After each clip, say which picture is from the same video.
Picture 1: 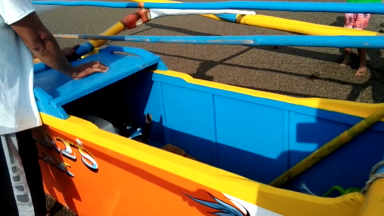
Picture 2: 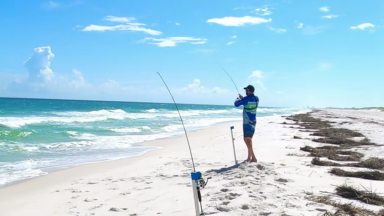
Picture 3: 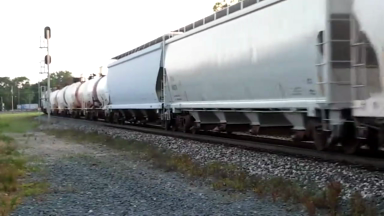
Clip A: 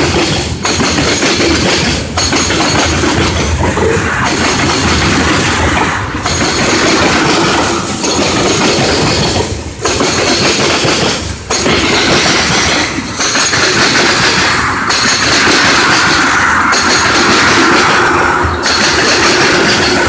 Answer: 3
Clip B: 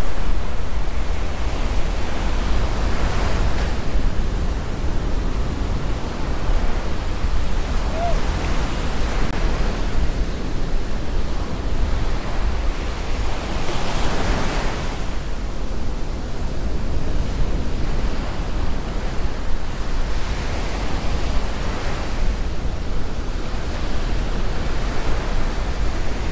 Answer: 2